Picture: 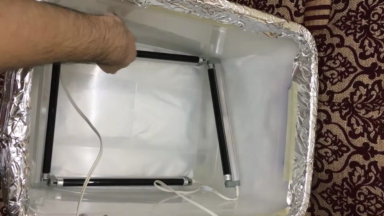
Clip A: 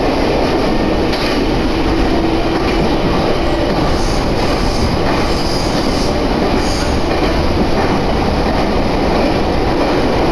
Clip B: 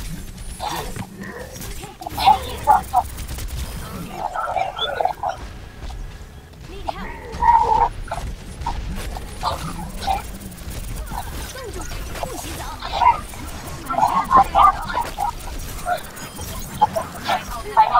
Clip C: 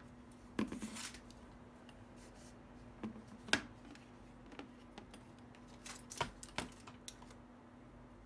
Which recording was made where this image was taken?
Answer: C